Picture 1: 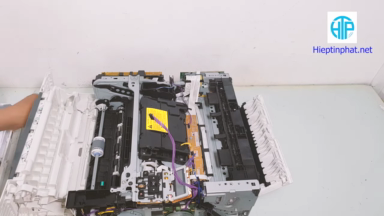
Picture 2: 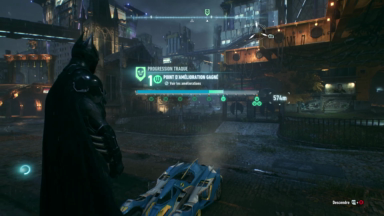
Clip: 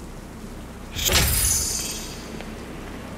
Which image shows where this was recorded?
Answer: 2